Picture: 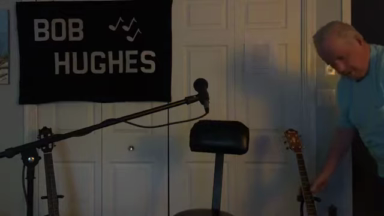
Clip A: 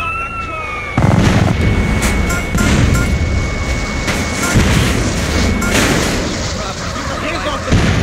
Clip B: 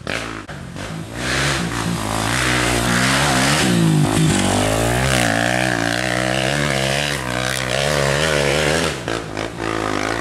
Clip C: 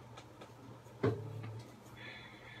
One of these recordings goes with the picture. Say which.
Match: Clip C